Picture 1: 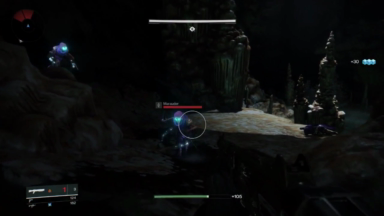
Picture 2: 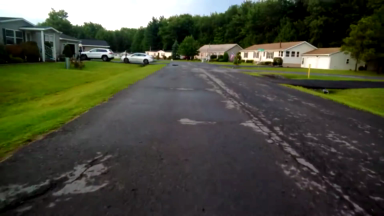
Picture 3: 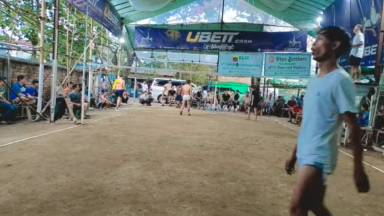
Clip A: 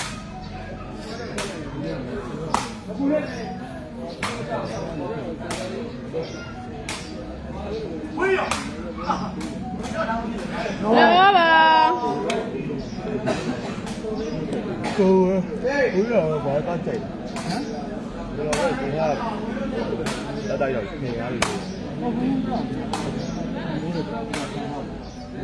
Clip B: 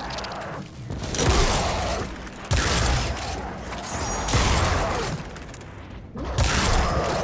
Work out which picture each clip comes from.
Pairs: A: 3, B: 1